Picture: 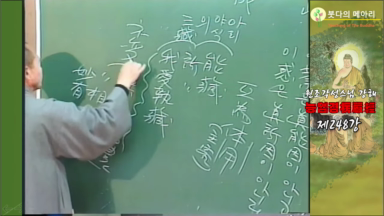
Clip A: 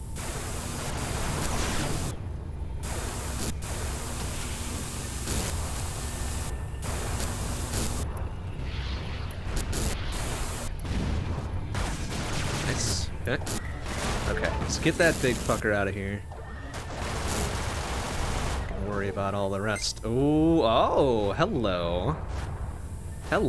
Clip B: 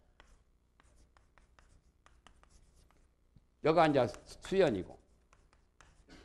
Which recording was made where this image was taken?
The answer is B